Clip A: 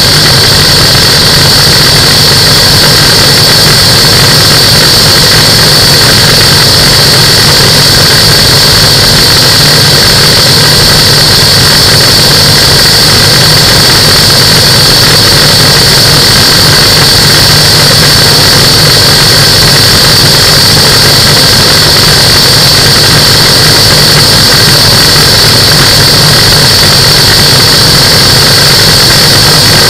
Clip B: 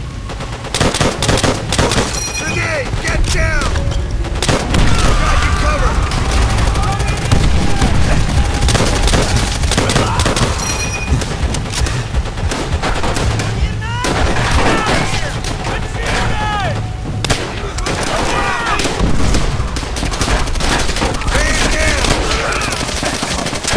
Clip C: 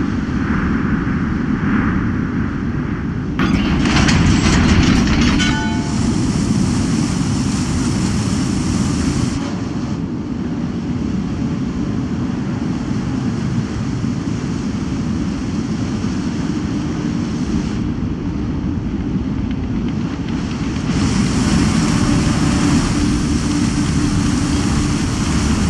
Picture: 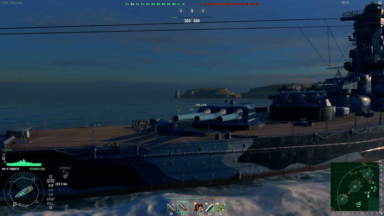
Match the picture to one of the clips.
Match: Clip C